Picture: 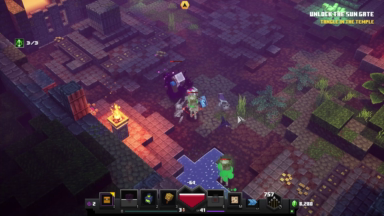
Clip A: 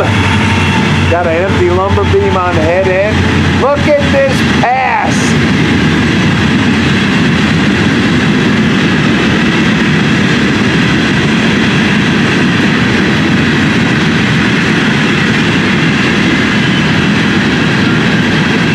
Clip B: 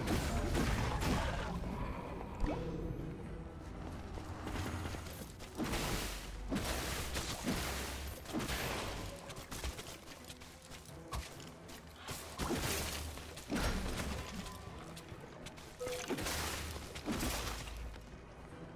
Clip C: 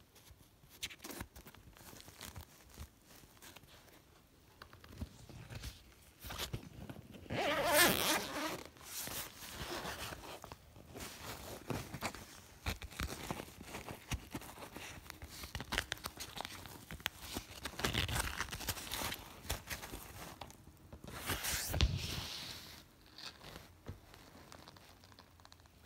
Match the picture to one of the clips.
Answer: B